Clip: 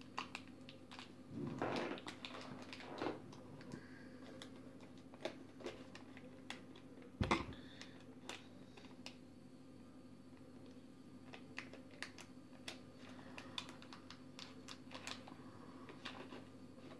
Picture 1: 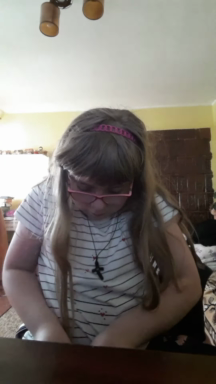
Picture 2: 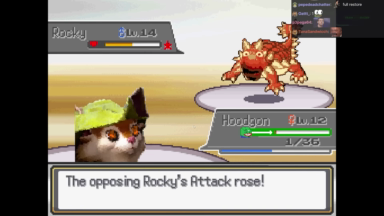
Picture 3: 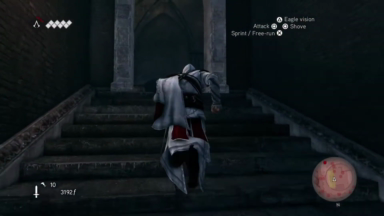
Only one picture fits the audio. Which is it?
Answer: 1